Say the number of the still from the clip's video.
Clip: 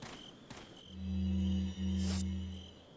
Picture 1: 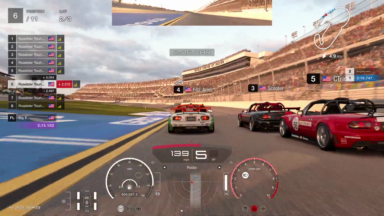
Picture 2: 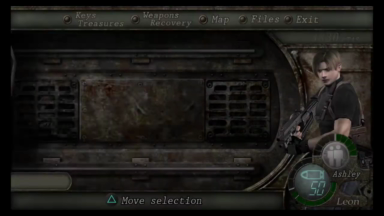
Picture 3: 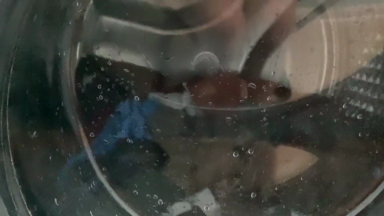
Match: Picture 2